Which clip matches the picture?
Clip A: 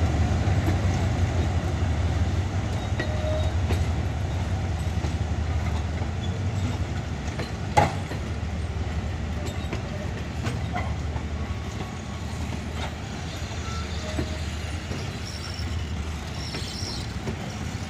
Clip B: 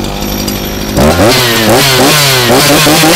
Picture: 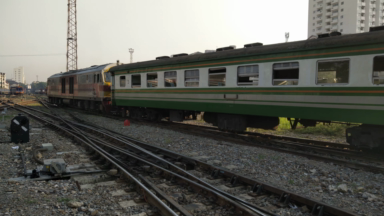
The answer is A